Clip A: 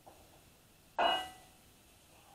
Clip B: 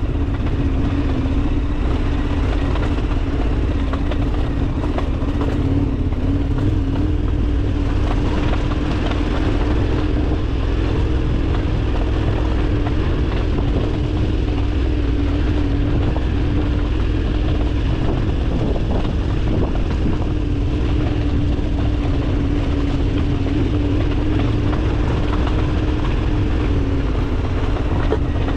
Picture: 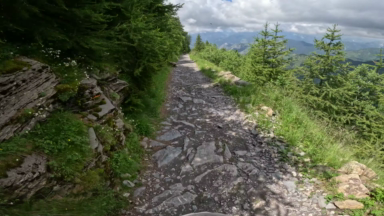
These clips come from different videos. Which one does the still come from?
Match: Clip B